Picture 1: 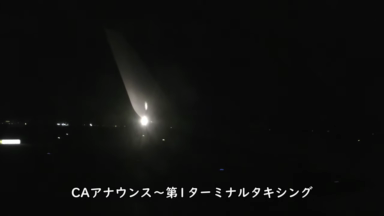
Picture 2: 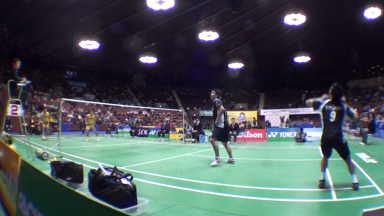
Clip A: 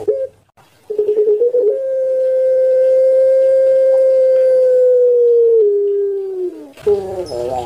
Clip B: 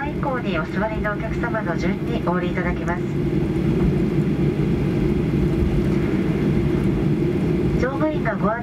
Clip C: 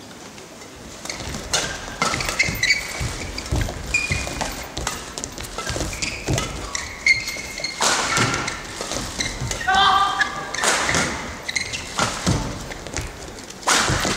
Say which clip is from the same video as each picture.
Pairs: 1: B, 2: C